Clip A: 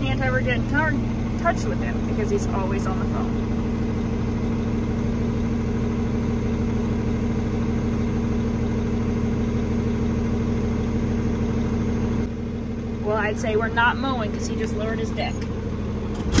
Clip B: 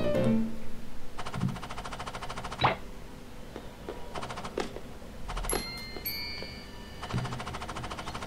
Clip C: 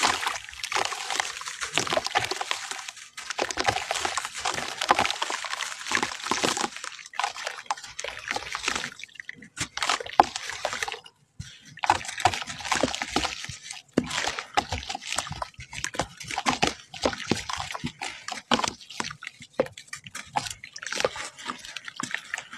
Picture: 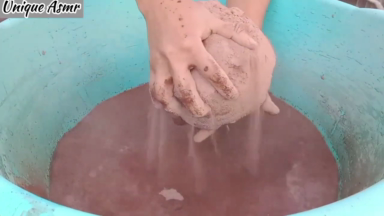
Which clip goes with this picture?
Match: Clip C